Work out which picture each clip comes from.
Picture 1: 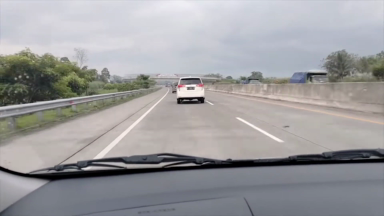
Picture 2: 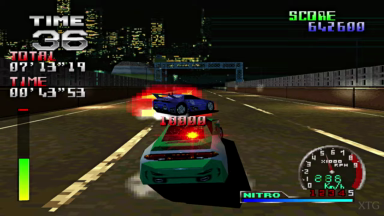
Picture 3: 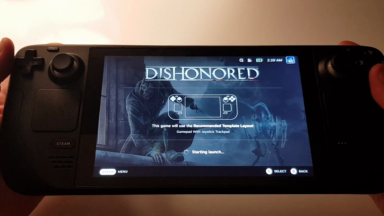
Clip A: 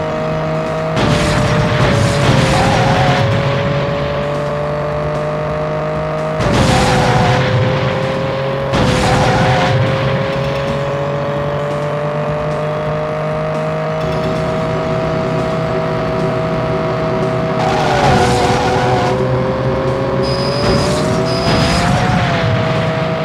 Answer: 2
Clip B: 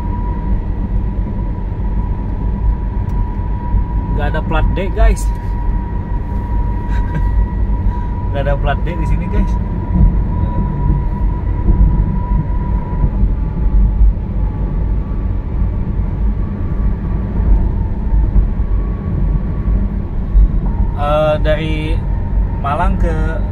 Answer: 1